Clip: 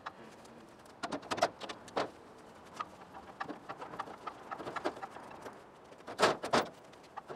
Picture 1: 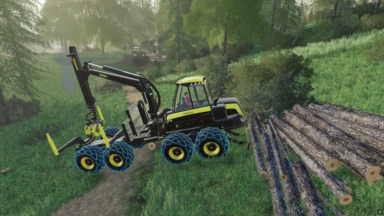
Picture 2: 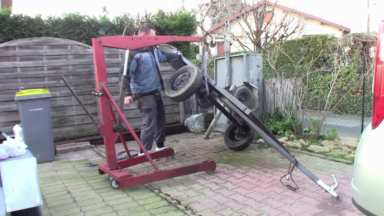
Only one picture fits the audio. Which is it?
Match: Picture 2